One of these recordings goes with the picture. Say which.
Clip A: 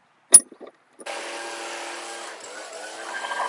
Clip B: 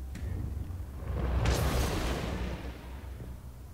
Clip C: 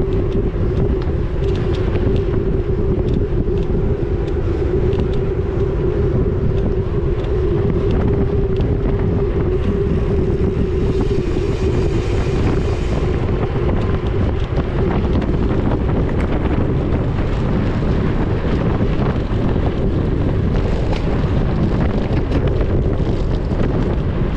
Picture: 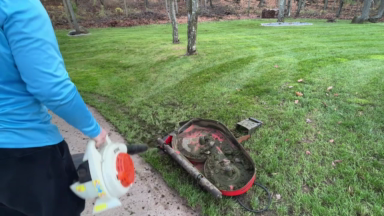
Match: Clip A